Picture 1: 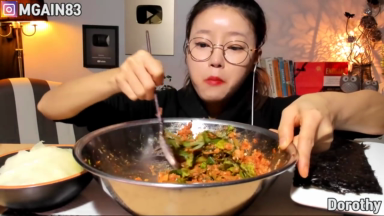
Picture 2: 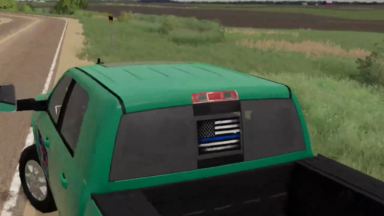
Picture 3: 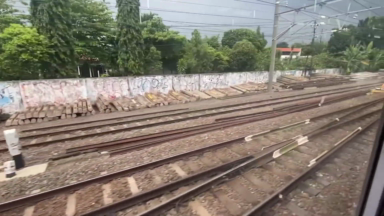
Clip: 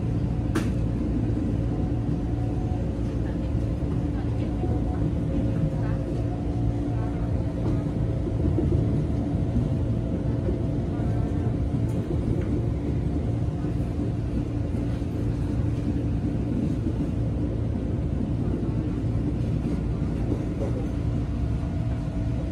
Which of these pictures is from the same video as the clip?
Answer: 3